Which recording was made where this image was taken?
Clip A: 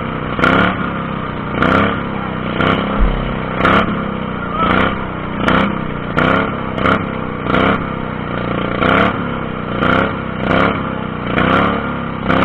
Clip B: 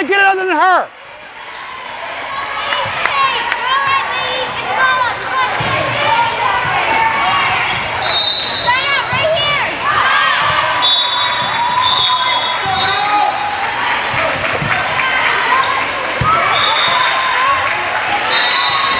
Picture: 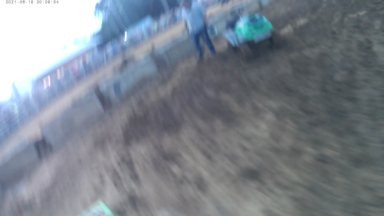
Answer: A